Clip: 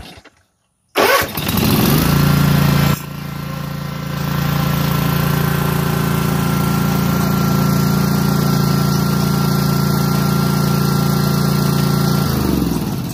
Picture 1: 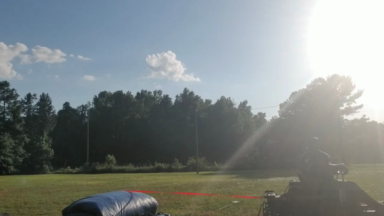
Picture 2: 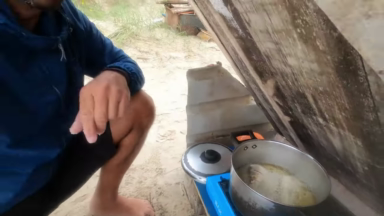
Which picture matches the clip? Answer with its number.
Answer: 1